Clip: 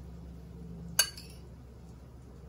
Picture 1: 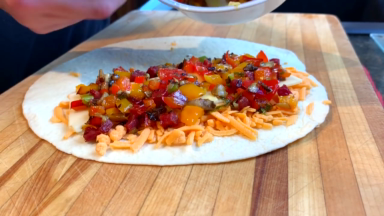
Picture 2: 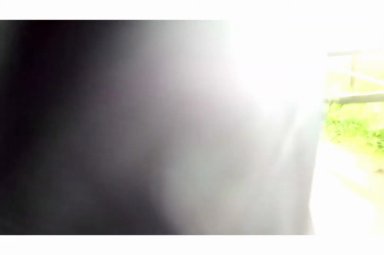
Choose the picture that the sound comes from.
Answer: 1